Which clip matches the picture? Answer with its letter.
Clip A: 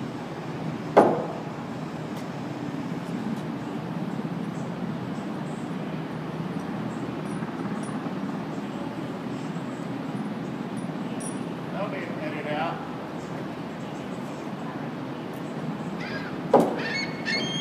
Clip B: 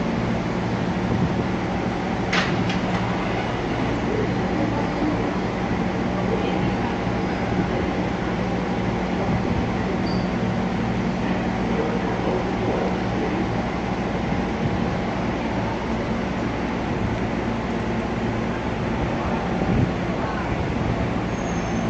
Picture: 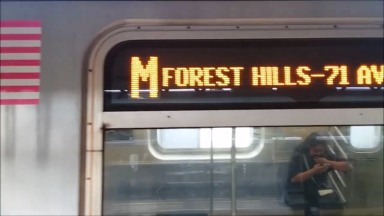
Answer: B